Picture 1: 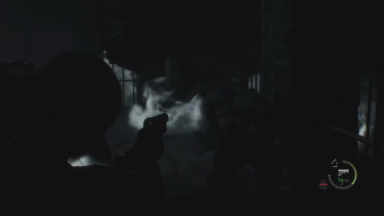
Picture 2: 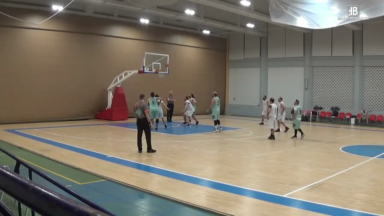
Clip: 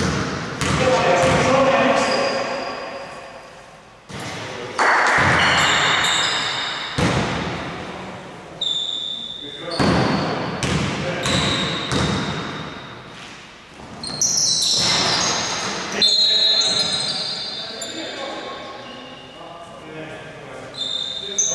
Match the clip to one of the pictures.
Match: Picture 2